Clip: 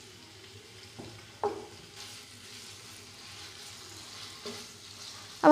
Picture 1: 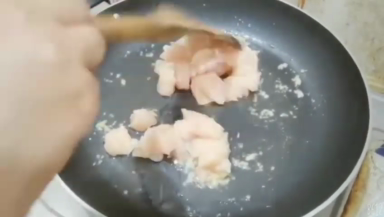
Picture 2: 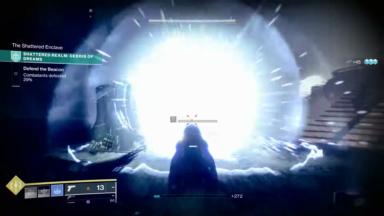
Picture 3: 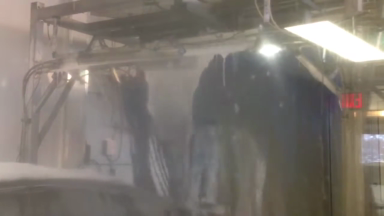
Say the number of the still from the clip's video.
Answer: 1